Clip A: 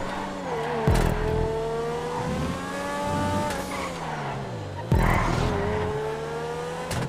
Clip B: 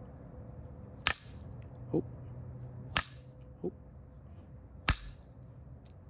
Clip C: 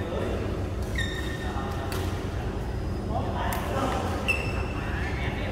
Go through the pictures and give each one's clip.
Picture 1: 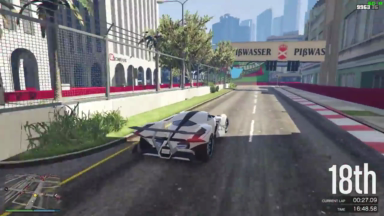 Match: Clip A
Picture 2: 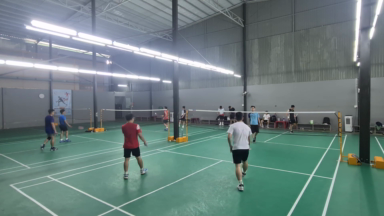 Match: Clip C